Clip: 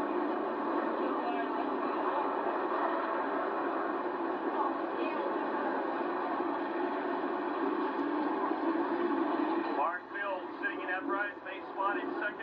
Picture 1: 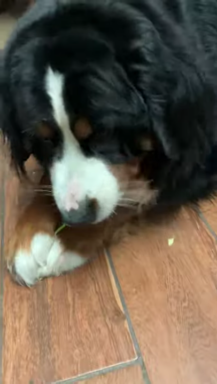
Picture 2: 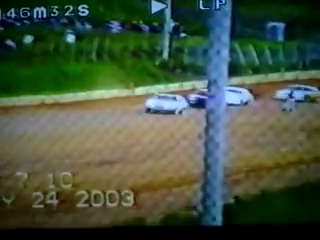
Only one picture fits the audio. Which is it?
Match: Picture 2